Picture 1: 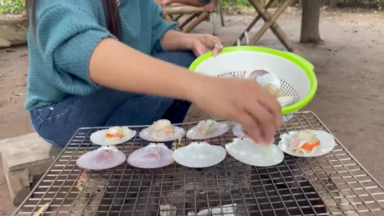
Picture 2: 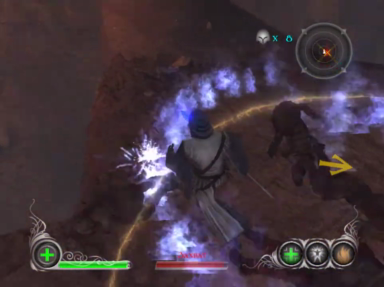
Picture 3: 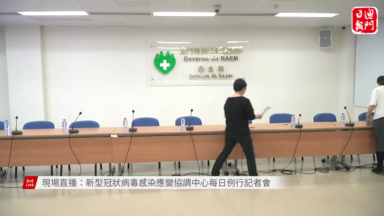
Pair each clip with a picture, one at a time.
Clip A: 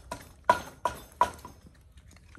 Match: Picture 1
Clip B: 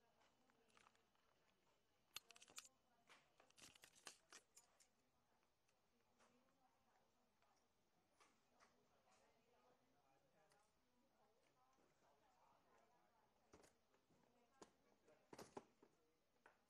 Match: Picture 3